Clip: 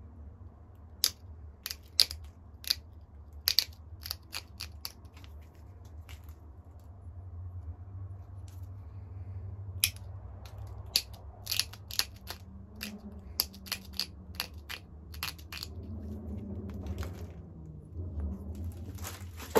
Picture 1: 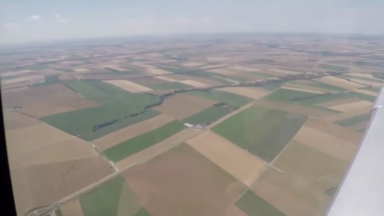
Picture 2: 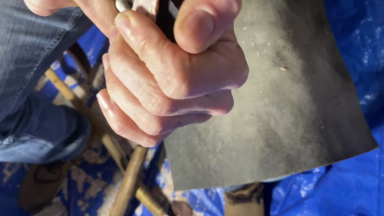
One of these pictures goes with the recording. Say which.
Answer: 2